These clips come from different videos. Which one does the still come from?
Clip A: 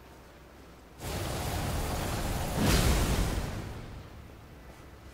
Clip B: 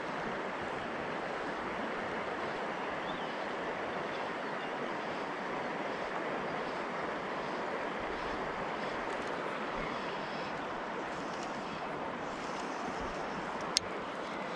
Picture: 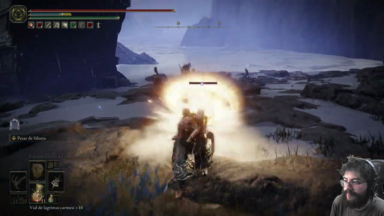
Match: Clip A